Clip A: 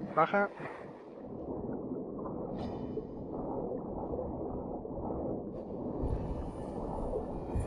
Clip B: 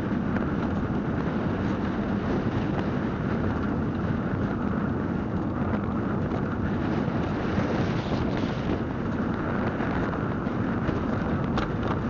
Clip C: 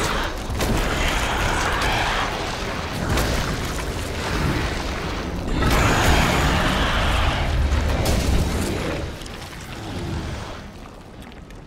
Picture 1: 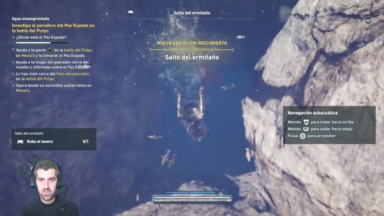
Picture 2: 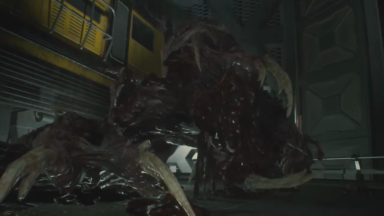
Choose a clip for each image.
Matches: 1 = A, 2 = C